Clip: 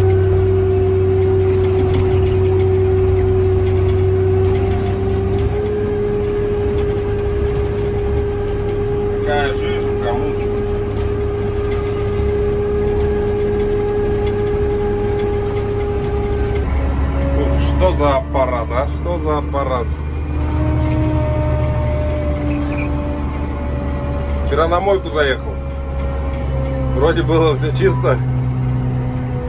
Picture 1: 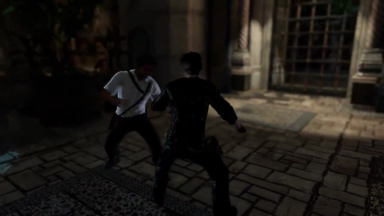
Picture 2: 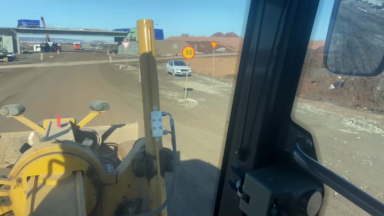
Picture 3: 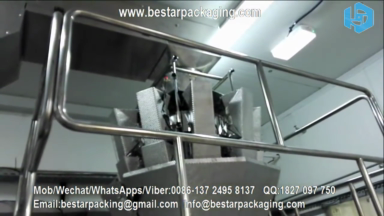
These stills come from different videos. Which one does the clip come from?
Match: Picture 2